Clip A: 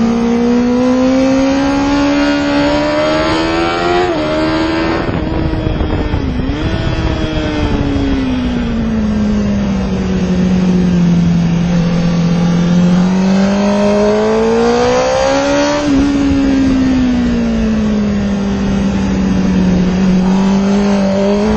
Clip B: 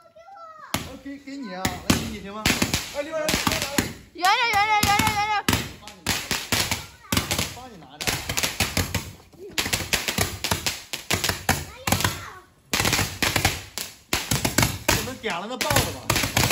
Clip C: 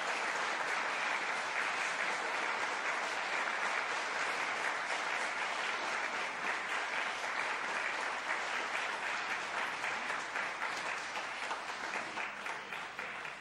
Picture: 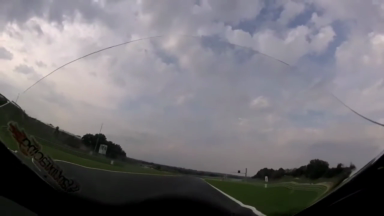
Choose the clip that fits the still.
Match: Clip A